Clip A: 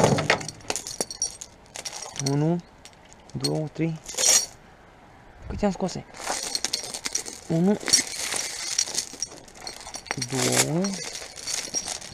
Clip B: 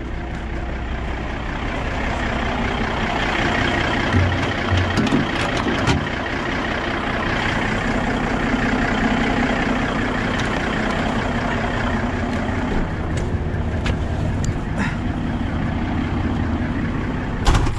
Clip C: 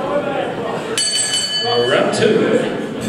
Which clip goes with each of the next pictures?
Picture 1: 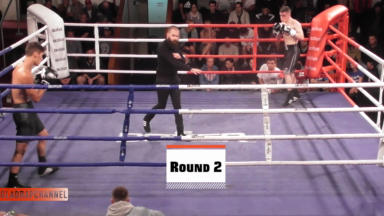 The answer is C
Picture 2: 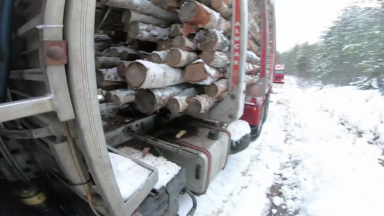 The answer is B